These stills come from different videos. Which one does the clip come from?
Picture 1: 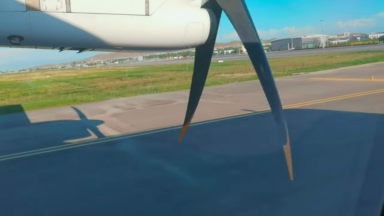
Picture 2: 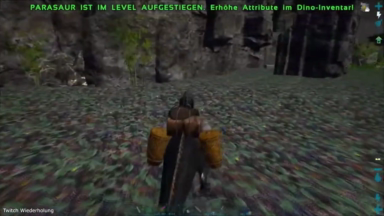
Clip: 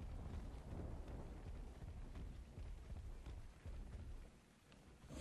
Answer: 2